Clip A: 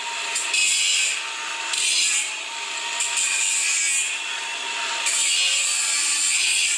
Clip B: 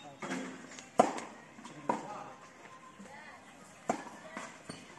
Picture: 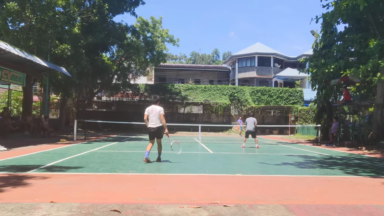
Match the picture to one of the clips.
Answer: B